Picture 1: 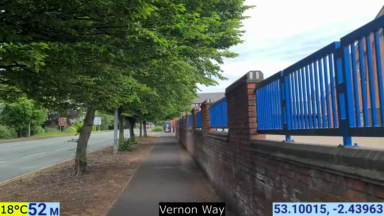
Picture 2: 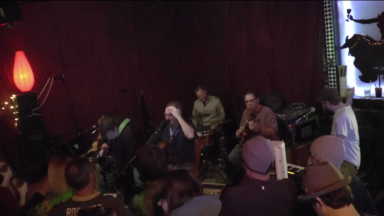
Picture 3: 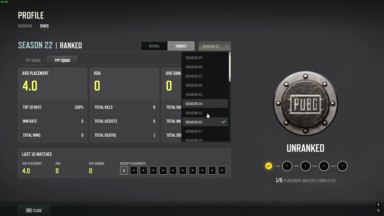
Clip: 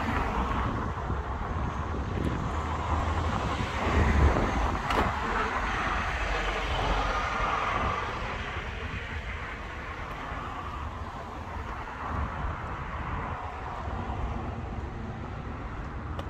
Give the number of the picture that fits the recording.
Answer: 1